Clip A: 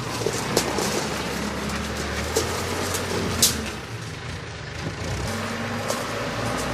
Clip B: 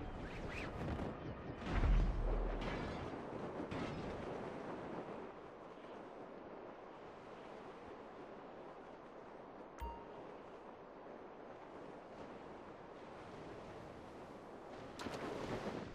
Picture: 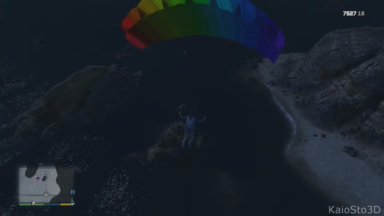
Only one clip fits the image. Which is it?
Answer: B